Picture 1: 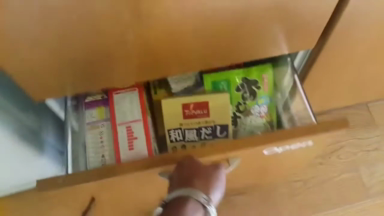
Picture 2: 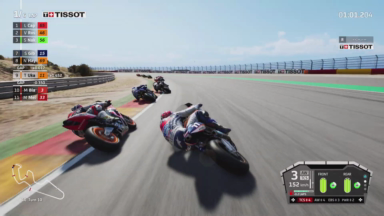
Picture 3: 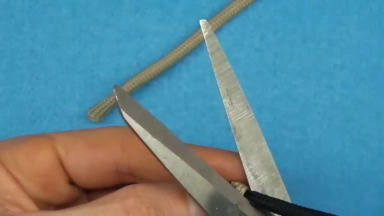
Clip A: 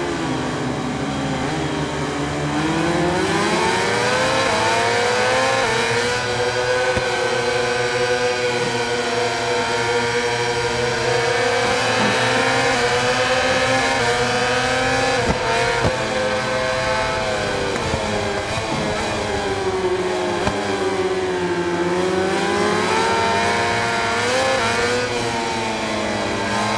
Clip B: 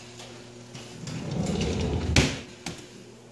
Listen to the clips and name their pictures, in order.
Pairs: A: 2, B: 1